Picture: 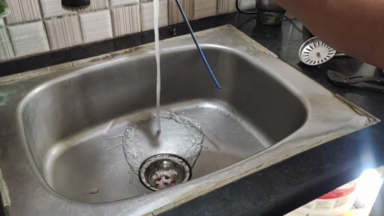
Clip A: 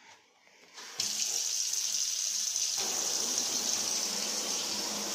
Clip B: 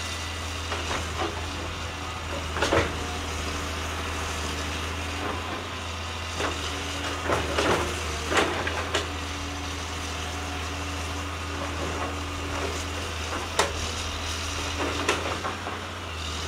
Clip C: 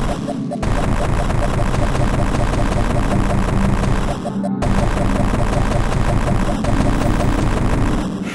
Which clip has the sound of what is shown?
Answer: A